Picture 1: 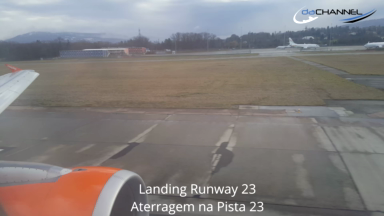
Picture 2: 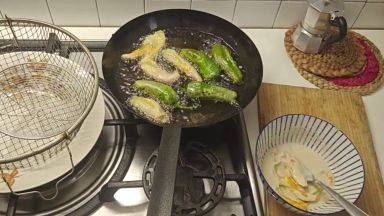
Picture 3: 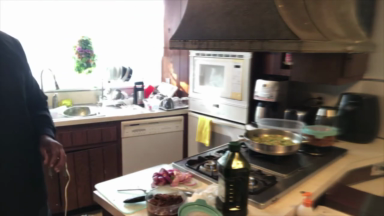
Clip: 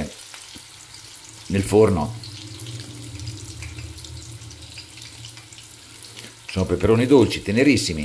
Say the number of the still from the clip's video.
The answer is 2